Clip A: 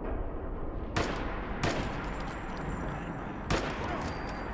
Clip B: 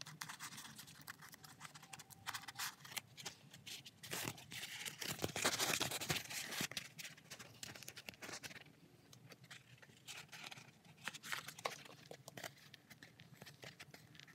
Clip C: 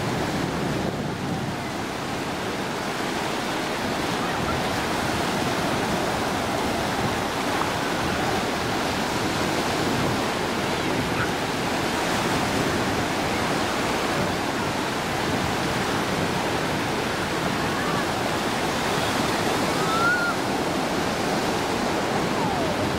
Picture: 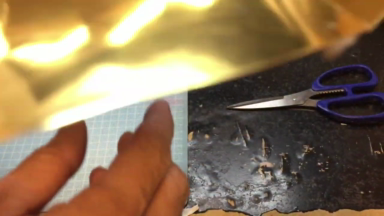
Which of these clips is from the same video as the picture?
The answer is B